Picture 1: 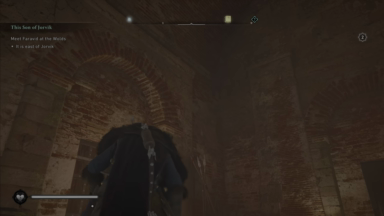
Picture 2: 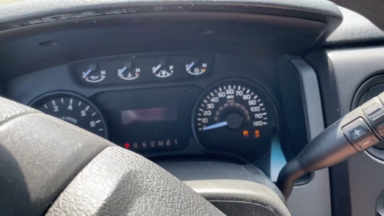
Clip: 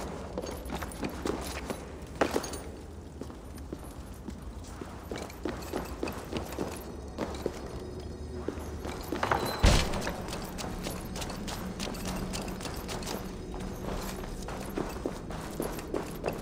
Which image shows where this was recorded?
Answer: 1